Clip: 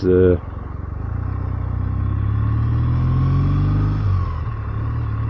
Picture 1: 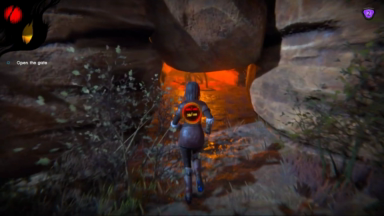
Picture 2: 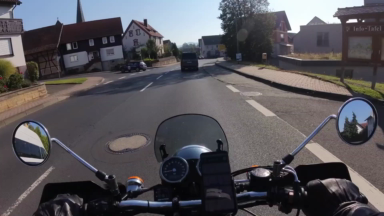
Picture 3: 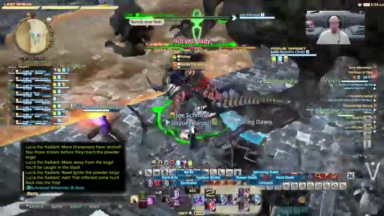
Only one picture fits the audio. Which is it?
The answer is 2